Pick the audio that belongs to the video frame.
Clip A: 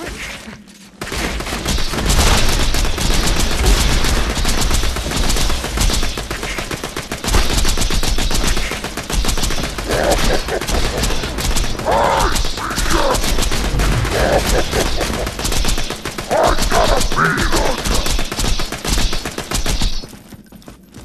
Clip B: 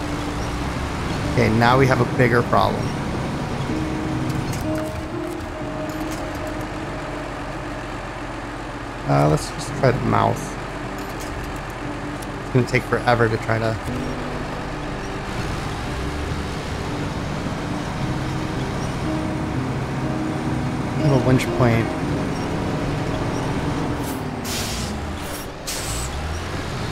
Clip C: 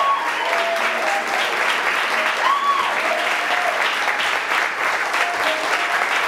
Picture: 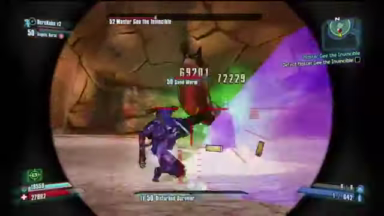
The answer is A